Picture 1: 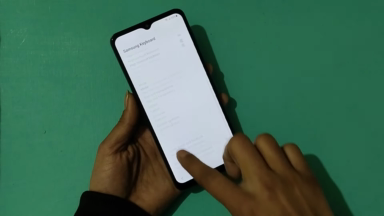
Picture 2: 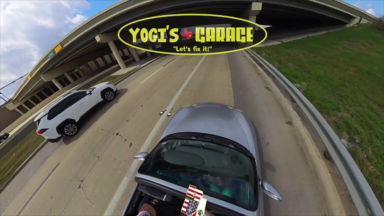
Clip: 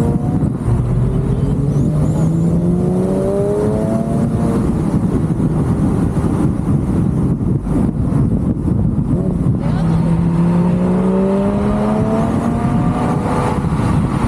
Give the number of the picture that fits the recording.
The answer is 2